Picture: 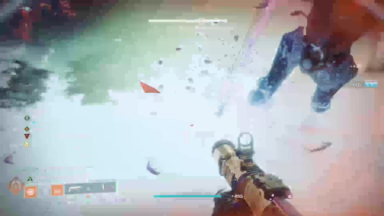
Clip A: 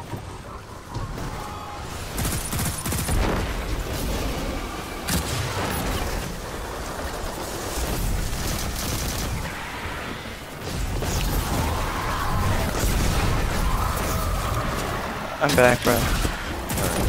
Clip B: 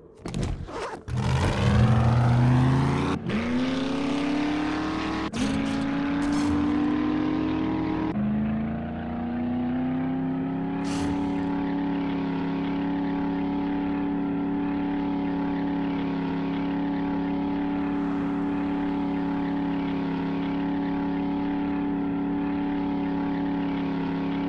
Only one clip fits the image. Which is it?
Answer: A